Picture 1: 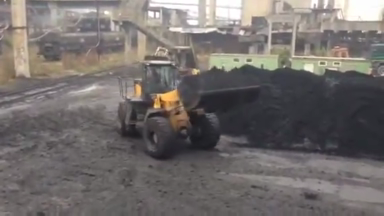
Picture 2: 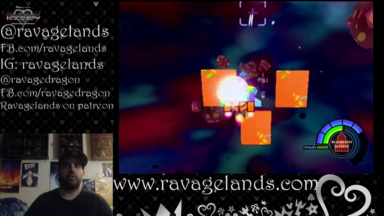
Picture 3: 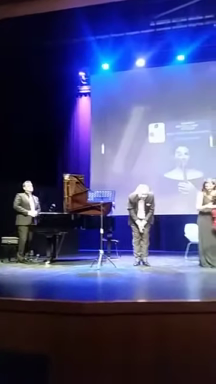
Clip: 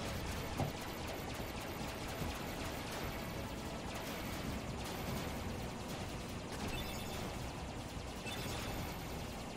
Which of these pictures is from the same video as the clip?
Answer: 2